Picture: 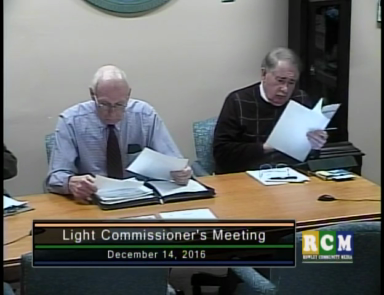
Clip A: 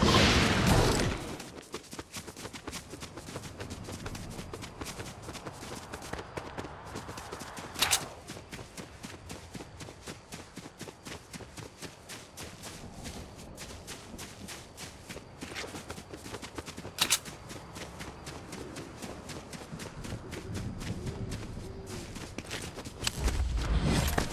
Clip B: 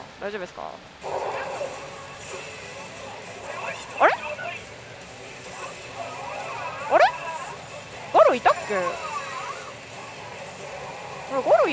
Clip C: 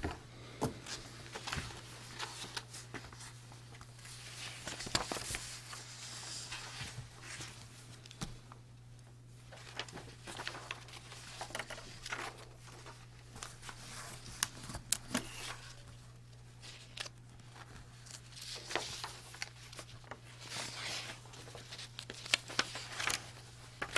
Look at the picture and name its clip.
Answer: C